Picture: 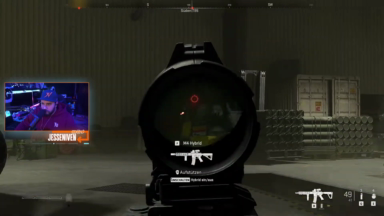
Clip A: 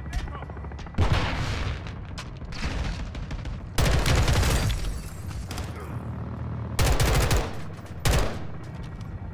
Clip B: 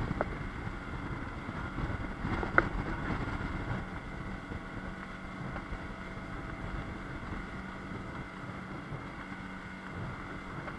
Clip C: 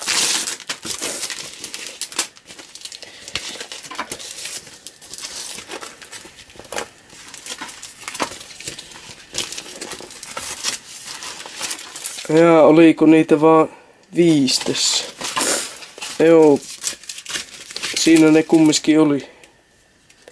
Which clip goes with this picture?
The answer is A